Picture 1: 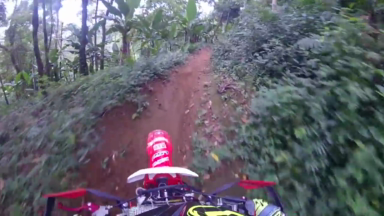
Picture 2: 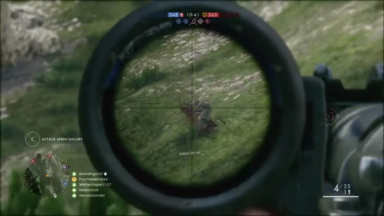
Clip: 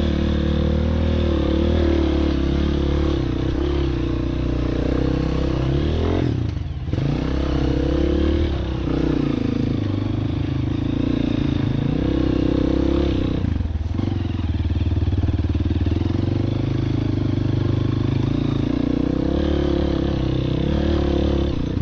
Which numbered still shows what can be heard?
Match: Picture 1